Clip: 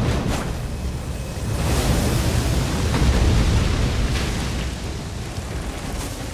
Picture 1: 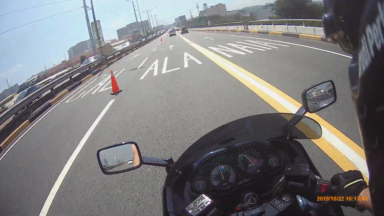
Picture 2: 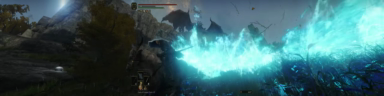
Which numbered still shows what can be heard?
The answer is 2